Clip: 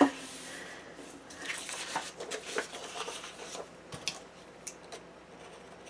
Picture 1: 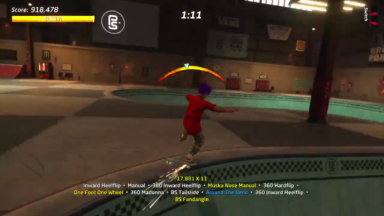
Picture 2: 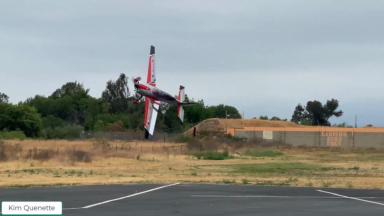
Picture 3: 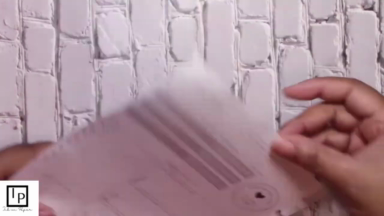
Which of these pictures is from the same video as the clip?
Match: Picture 3